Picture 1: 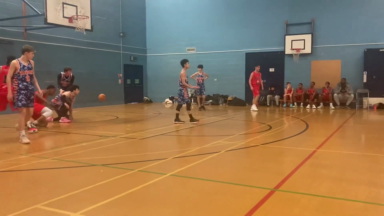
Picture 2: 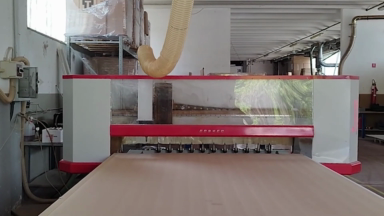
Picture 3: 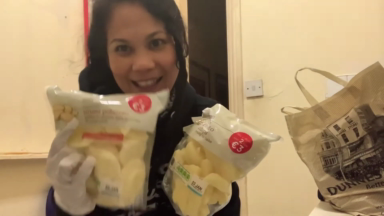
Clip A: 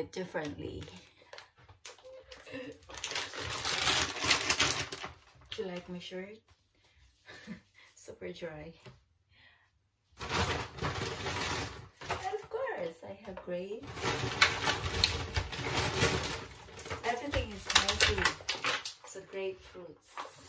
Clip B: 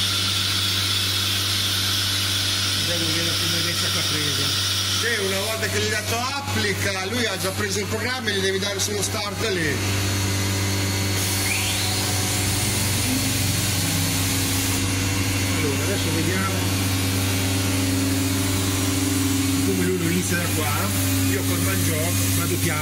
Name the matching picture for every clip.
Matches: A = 3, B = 2